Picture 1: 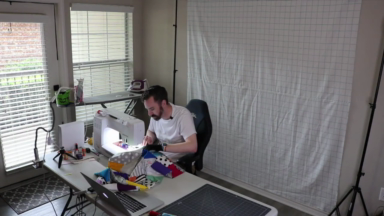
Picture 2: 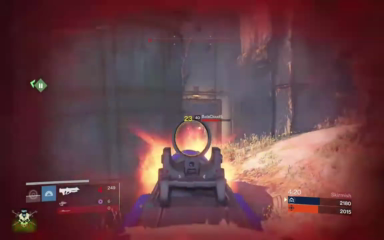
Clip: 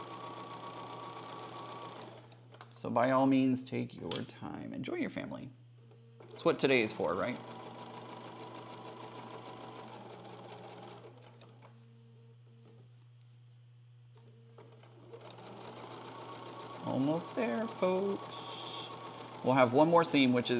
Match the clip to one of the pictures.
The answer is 1